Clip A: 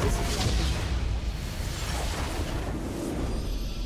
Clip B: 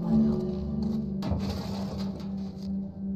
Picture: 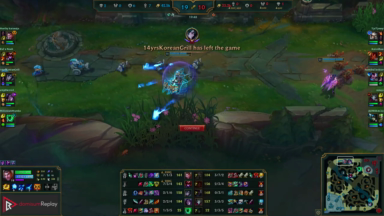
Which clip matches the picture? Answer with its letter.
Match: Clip A